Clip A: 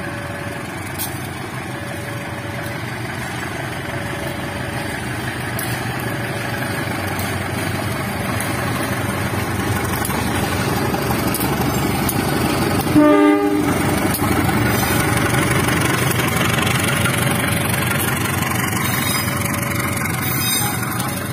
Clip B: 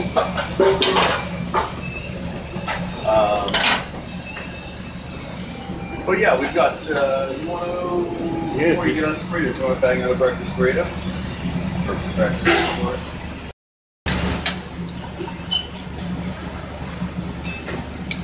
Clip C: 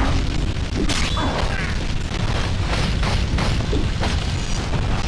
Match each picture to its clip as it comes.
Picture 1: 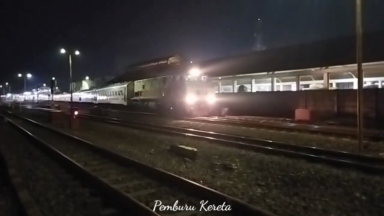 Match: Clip A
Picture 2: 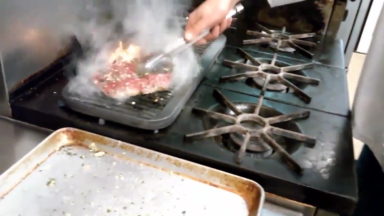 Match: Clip B